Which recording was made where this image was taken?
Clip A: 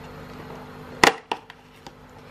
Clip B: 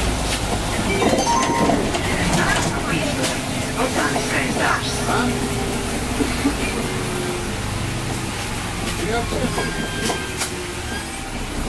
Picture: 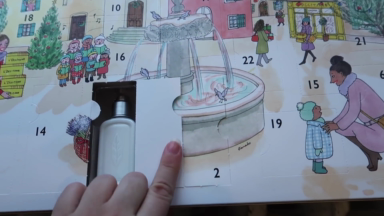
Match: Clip A